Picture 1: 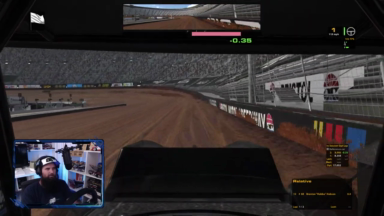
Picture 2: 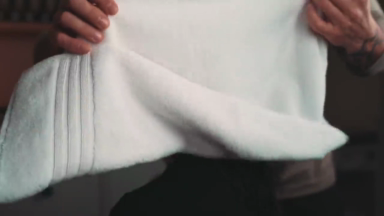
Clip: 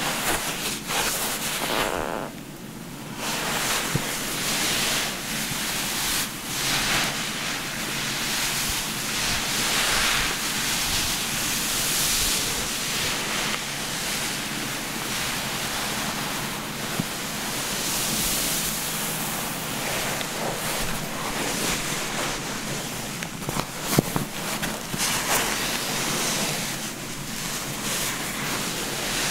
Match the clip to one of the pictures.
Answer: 2